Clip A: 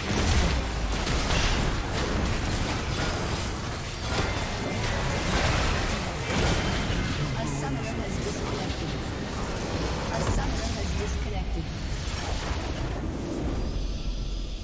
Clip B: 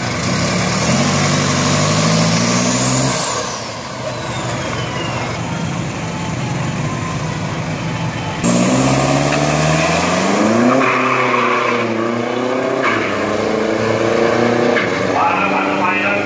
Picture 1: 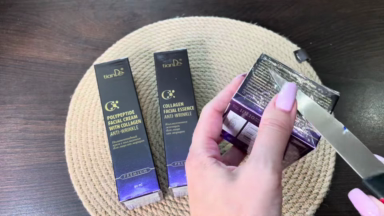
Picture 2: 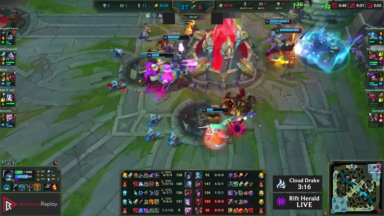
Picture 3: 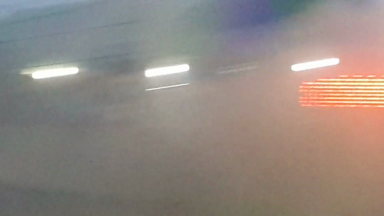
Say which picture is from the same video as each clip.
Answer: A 2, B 3